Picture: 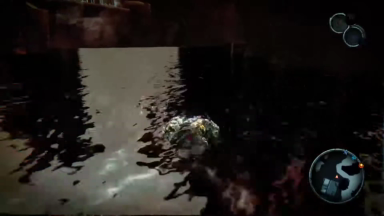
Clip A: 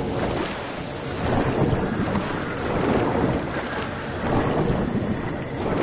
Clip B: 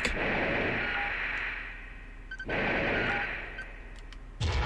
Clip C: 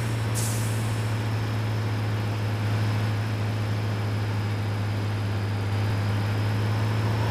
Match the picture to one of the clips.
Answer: A